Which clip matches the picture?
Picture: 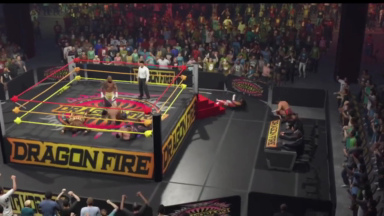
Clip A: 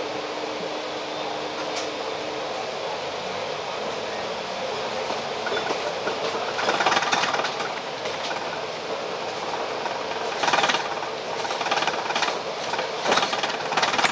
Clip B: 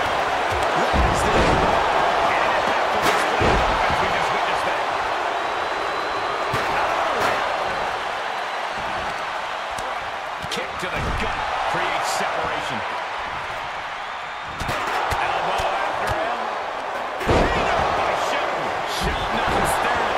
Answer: B